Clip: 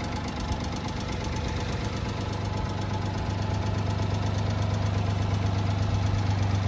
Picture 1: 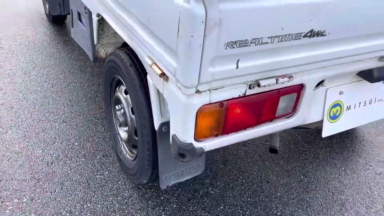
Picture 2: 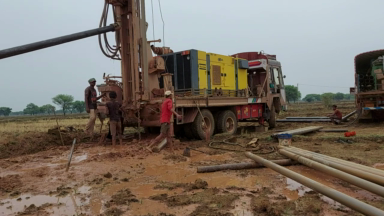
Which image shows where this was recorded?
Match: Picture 1